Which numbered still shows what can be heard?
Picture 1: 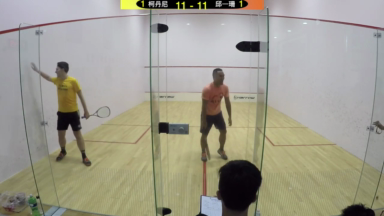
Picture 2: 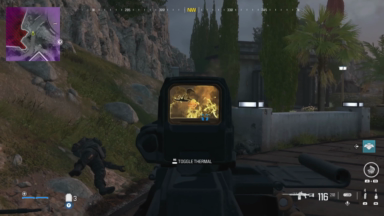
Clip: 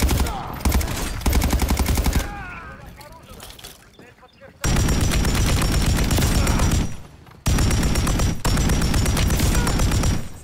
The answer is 2